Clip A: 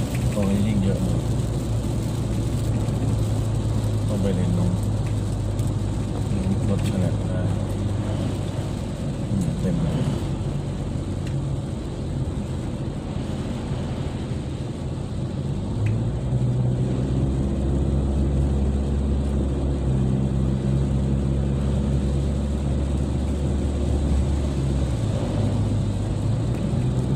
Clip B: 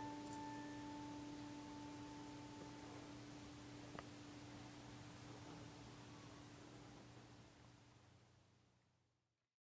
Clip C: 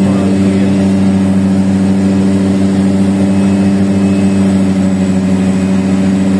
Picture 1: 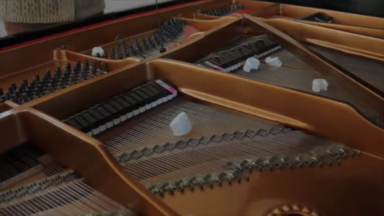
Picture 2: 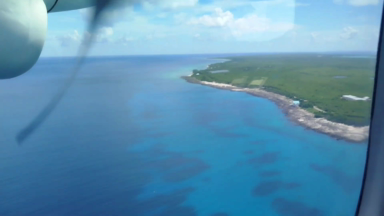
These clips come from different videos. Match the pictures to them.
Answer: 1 B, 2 C